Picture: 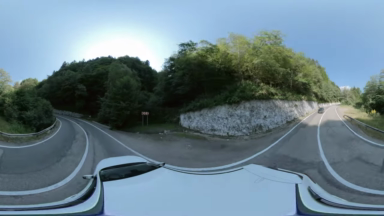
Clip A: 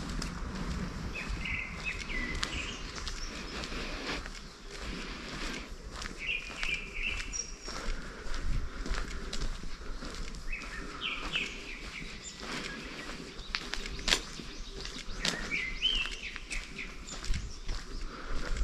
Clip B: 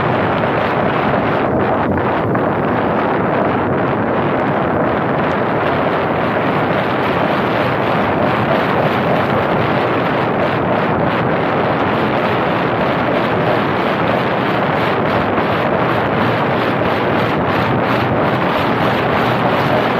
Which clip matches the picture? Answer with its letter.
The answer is B